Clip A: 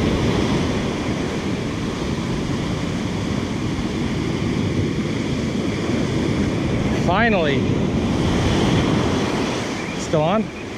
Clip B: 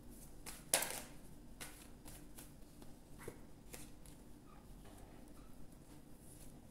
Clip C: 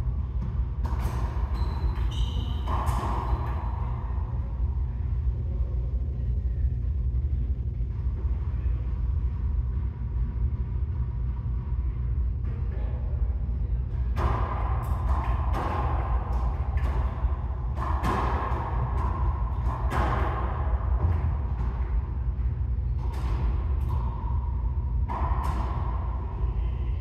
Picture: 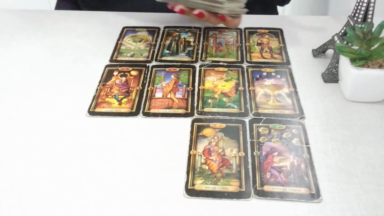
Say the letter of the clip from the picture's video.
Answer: B